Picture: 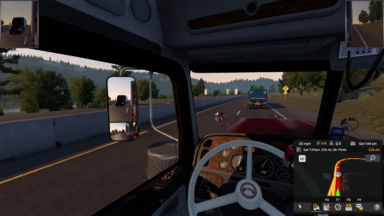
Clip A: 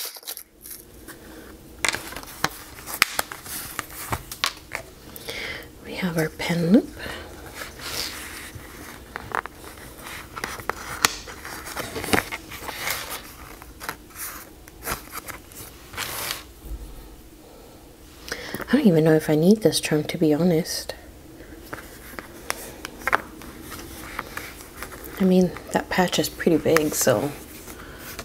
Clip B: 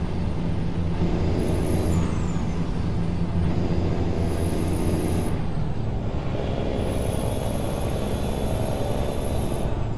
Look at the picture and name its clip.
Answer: B